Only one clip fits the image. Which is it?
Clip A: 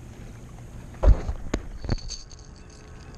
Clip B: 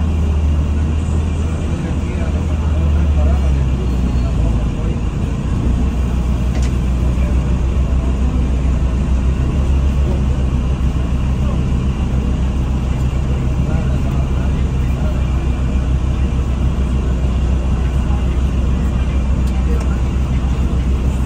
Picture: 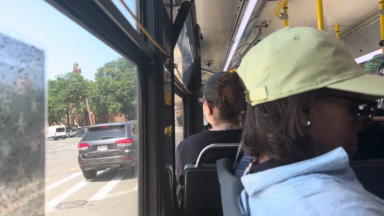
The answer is B